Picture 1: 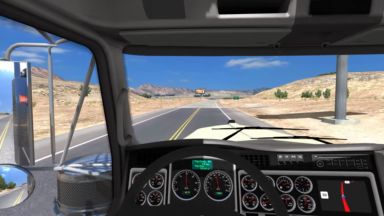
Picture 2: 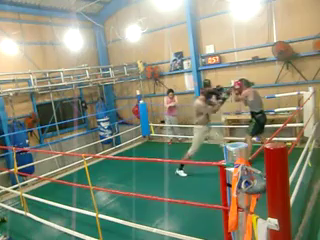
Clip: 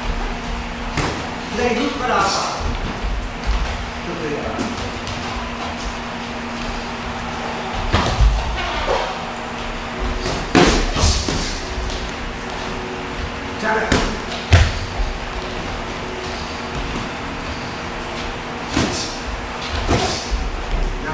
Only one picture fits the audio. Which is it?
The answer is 2